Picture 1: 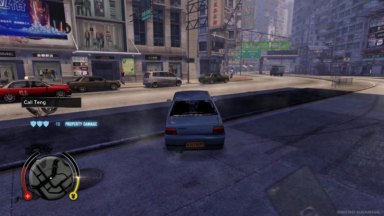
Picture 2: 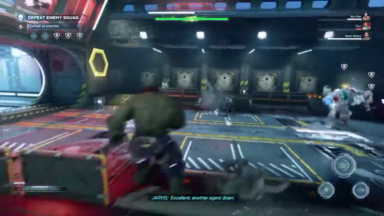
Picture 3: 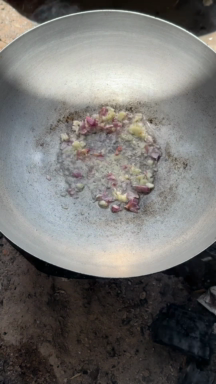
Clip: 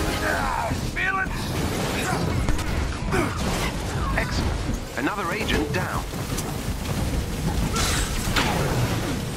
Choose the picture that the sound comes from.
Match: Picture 2